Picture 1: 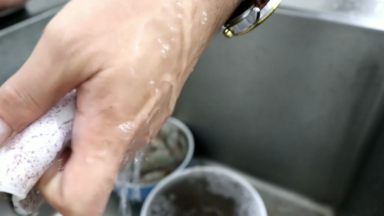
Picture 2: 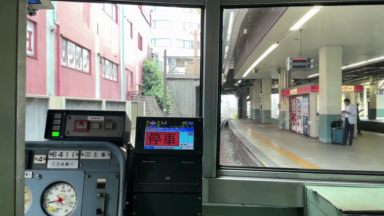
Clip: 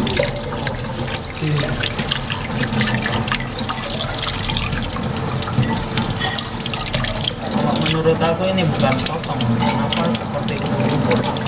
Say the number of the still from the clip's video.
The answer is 1